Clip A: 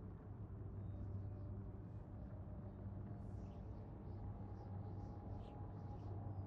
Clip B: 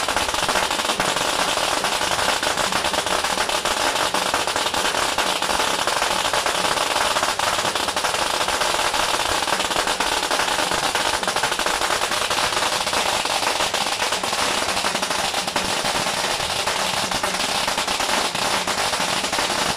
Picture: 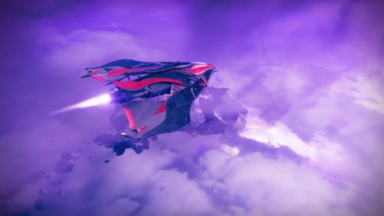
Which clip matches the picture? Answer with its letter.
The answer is A